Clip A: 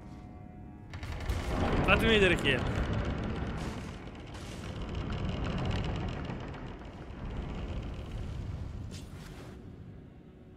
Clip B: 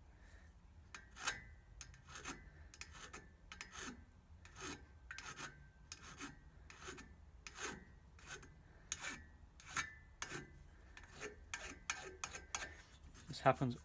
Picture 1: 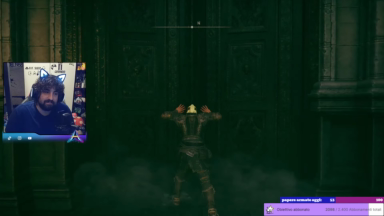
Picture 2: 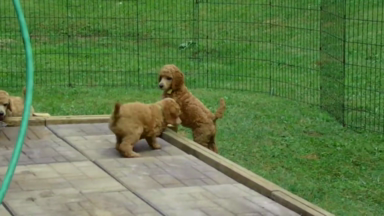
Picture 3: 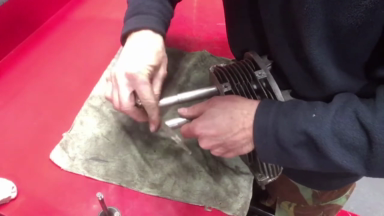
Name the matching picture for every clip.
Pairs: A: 1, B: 3